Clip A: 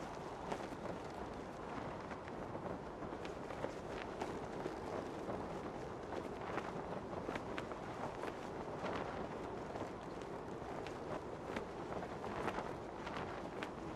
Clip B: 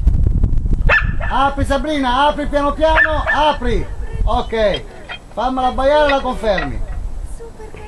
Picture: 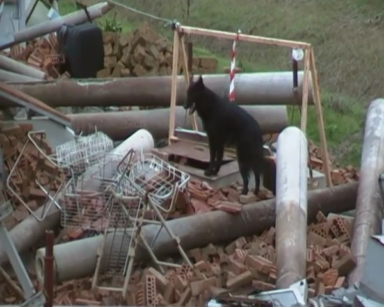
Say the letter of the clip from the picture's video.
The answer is B